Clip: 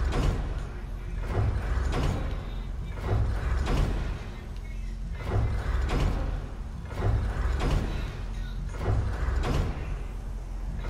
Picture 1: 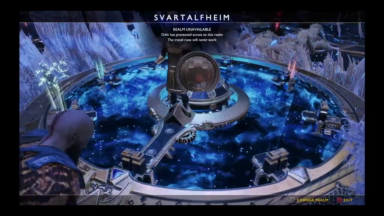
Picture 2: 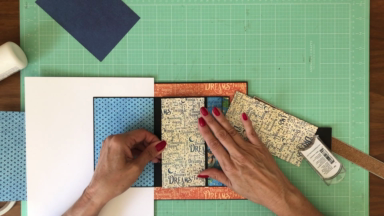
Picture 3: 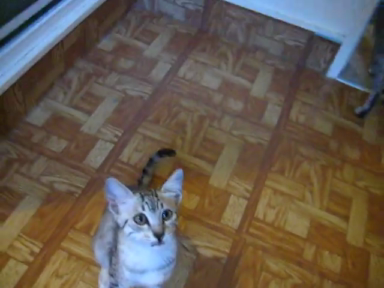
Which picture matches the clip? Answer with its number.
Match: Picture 1